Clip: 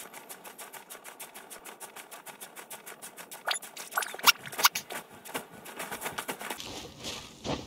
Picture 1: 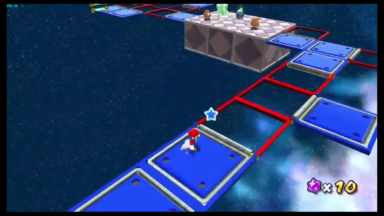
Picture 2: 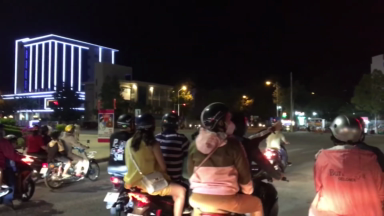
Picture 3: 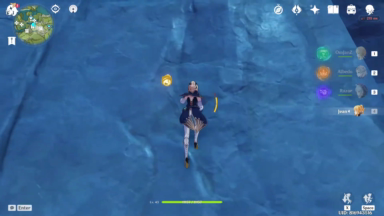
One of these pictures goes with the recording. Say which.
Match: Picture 3